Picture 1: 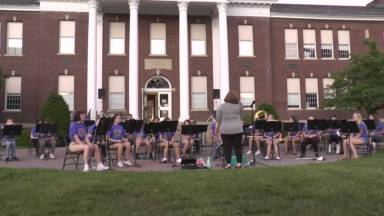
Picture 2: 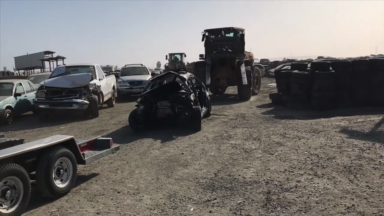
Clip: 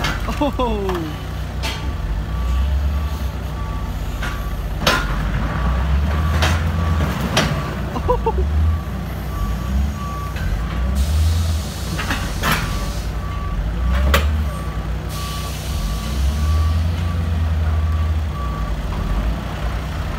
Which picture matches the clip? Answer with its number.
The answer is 2